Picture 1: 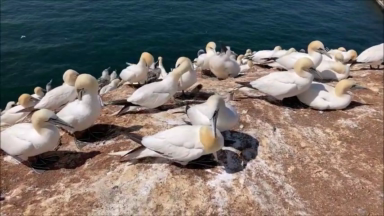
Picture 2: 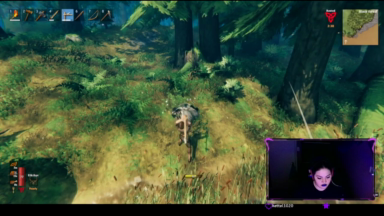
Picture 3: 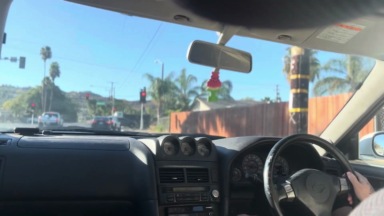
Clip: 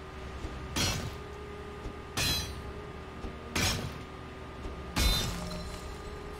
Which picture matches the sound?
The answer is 2